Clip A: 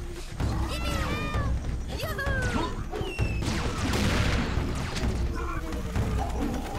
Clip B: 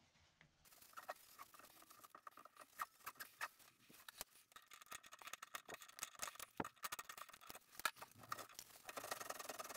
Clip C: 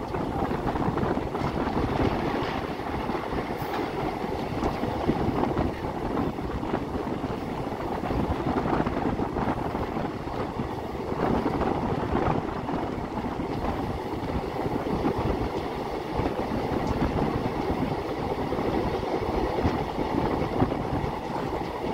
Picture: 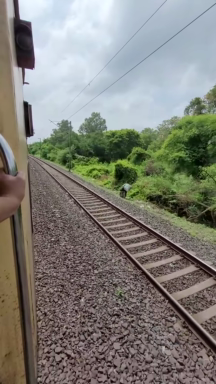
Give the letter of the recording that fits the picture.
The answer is C